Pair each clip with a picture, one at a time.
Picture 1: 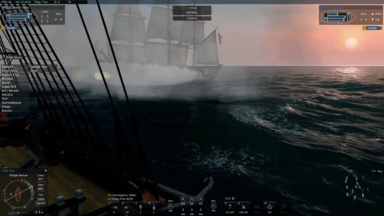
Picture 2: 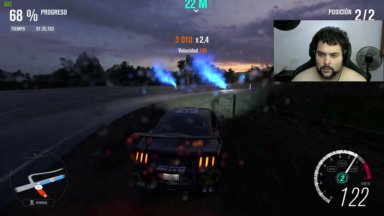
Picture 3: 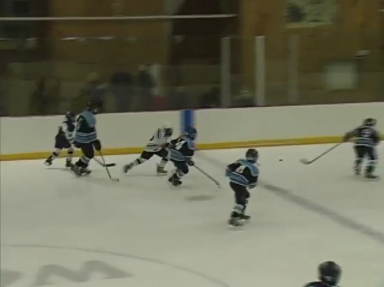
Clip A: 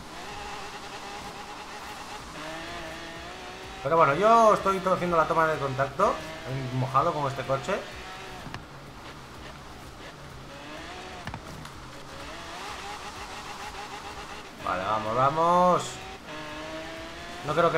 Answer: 2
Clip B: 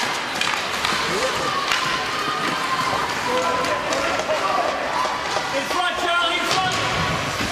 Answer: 3